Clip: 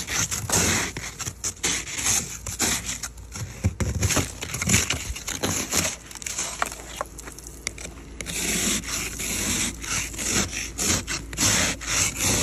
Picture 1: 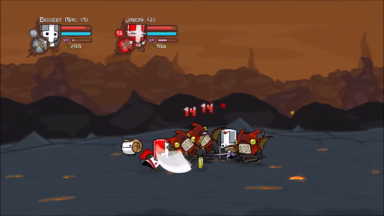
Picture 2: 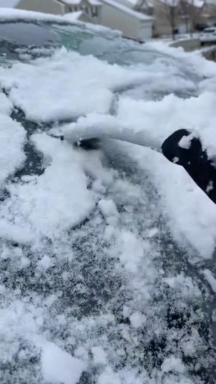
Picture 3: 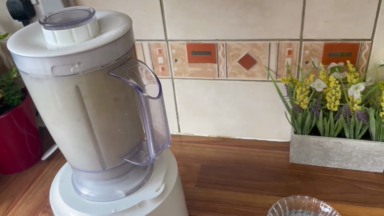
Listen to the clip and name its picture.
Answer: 2